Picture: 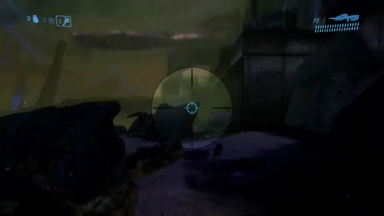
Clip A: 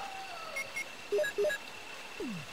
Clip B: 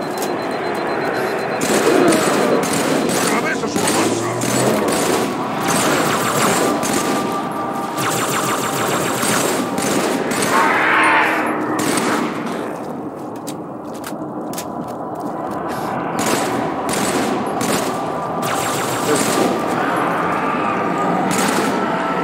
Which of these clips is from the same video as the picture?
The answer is B